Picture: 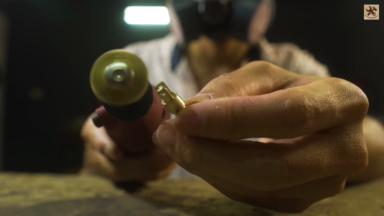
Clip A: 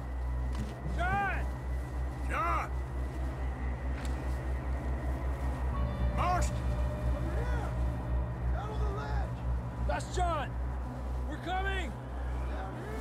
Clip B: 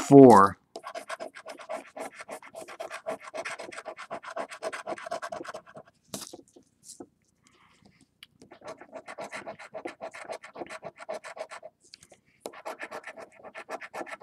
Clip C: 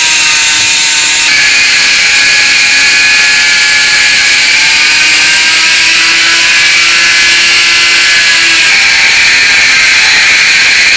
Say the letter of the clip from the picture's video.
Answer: C